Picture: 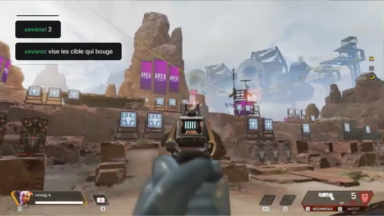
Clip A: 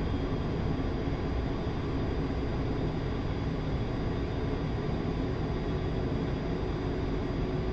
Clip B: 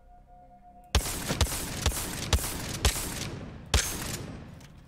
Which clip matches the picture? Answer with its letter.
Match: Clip B